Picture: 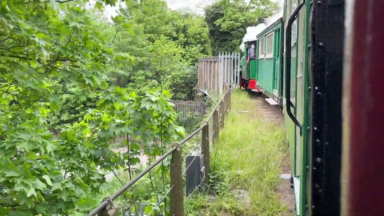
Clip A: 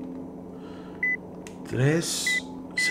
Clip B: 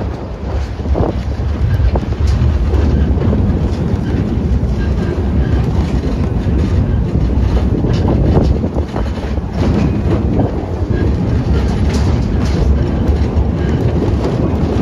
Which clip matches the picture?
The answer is B